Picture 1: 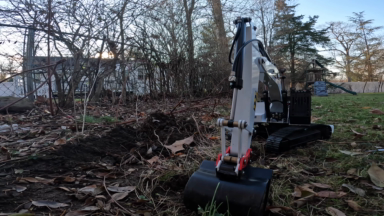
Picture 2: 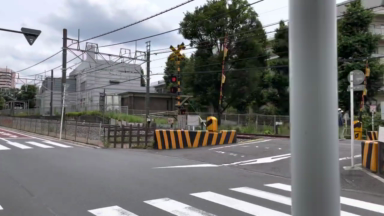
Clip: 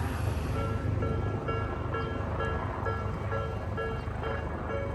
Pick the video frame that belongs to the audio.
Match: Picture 2